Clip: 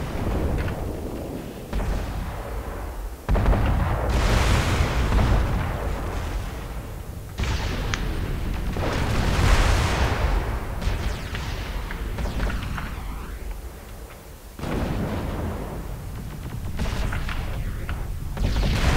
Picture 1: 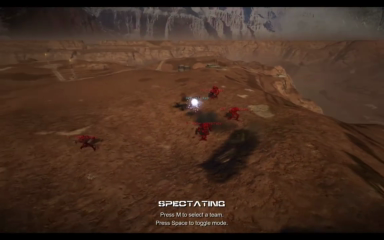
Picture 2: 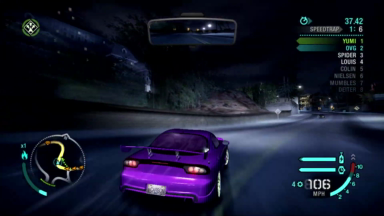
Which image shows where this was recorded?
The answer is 1